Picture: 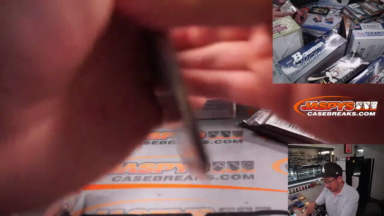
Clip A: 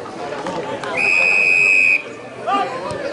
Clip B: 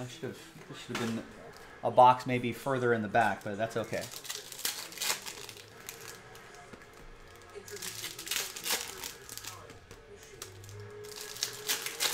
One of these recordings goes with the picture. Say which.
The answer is B